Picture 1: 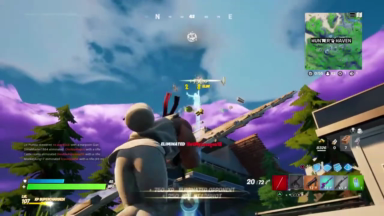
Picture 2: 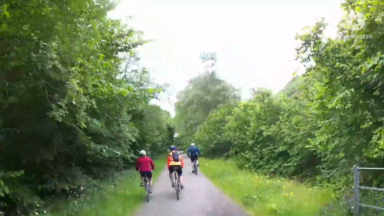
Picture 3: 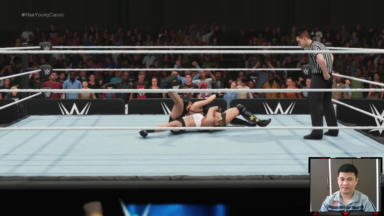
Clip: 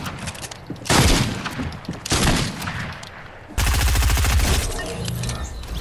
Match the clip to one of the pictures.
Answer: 1